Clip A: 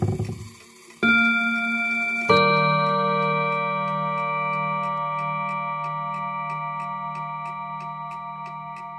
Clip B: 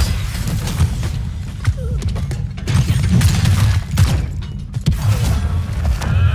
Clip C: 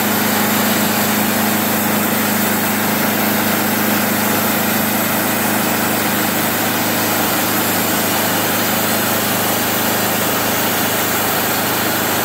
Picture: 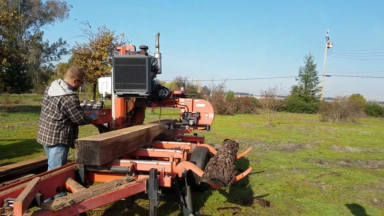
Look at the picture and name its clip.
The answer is C